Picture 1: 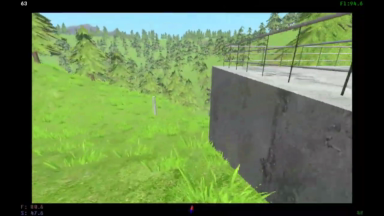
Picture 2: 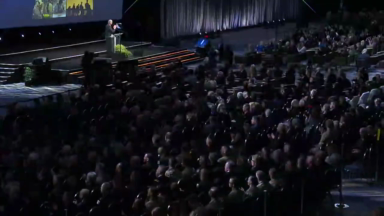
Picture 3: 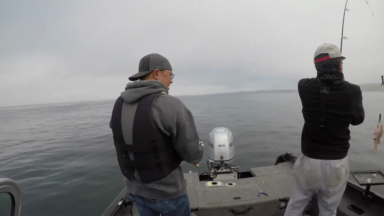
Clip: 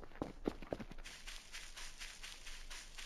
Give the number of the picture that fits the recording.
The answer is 1